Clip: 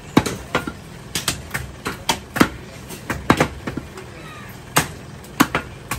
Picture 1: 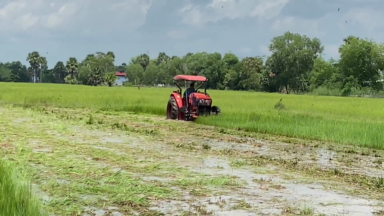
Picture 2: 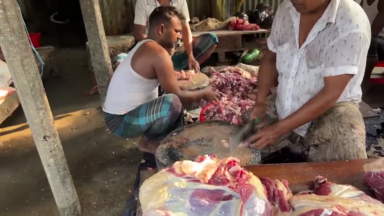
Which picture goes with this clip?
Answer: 2